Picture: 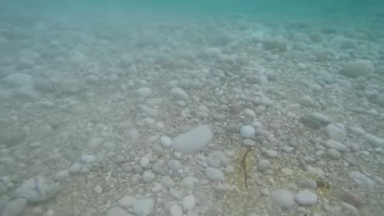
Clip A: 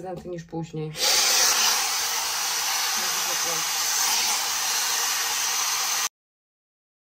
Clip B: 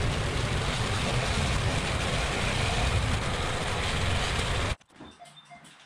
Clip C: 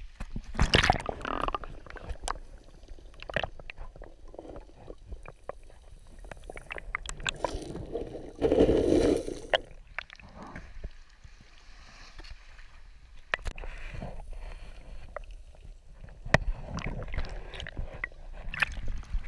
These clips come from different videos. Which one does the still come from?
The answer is C